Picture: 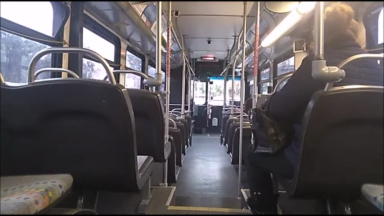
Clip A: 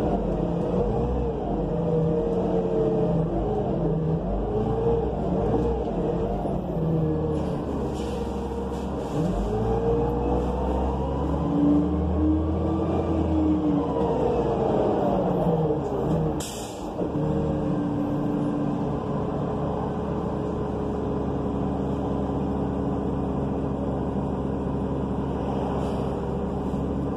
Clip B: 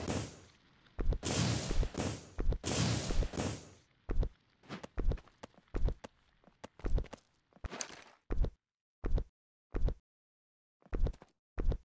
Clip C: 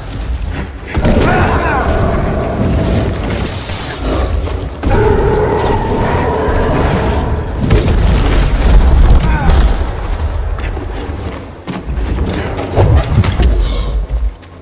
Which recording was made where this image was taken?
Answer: A